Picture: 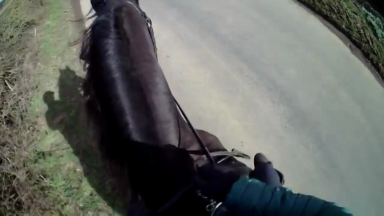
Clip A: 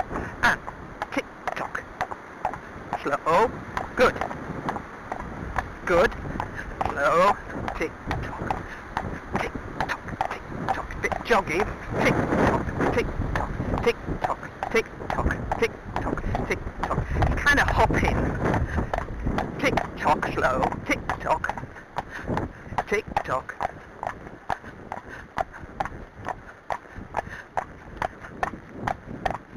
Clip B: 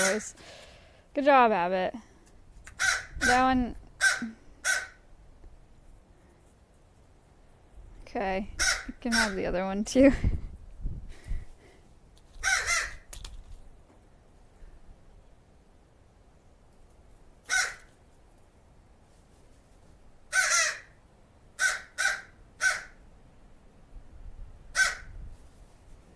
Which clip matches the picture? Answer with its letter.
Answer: A